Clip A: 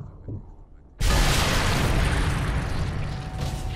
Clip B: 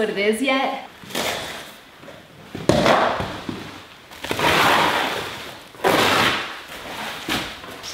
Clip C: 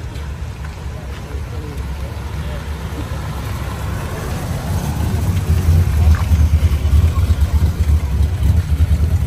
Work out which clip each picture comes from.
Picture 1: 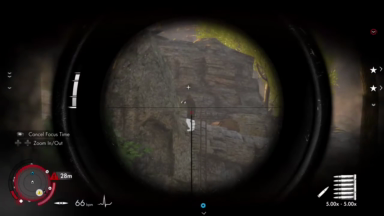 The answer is A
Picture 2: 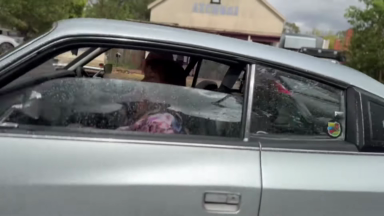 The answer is C